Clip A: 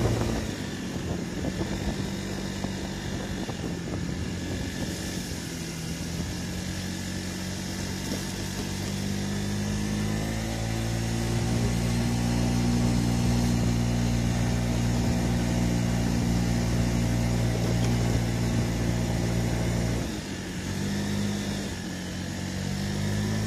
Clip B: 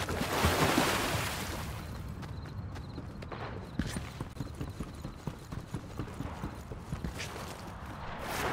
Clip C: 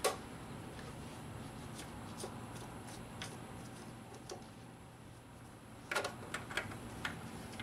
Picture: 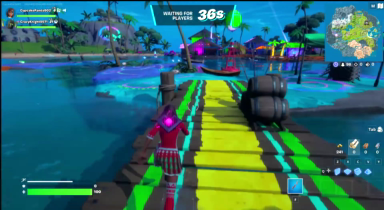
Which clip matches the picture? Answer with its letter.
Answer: B